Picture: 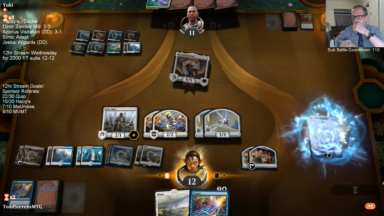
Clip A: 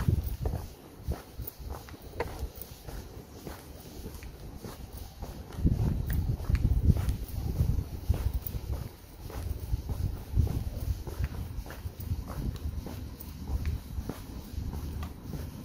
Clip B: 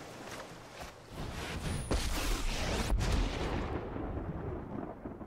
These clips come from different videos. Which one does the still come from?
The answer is B